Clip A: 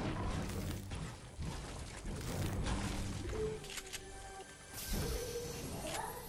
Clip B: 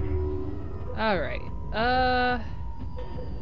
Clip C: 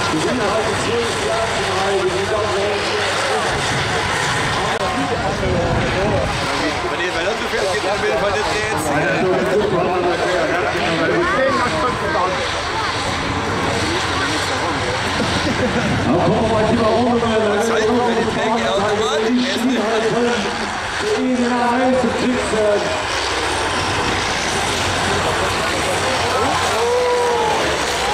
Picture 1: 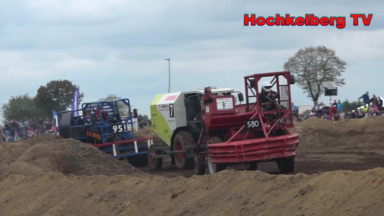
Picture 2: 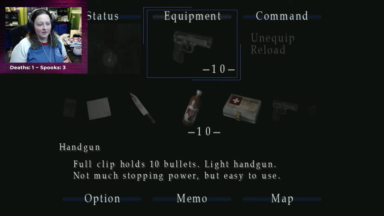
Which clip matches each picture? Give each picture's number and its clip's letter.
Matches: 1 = C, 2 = B